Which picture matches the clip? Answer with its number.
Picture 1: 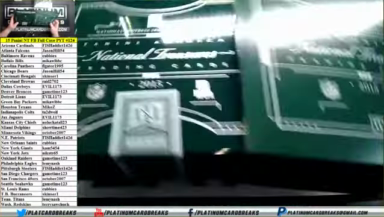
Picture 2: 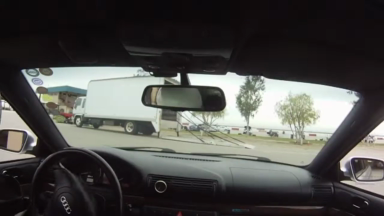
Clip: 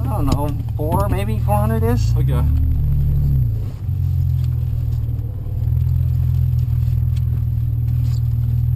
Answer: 2